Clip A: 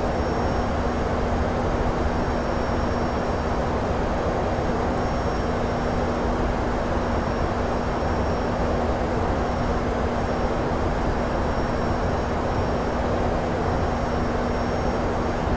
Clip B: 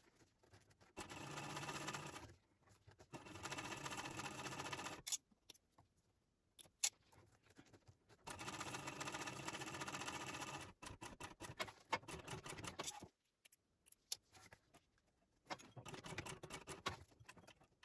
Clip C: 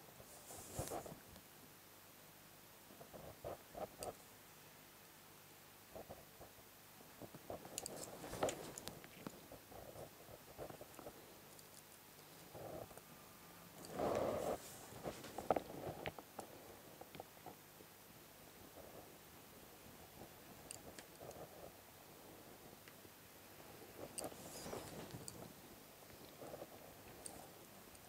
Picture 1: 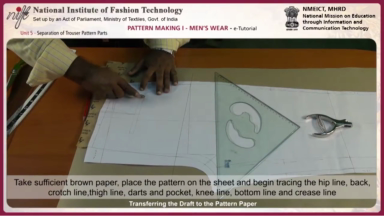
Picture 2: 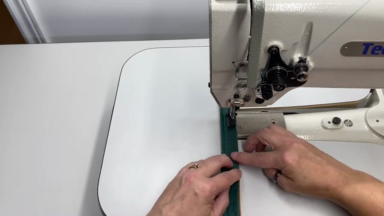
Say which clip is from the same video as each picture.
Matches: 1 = C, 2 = B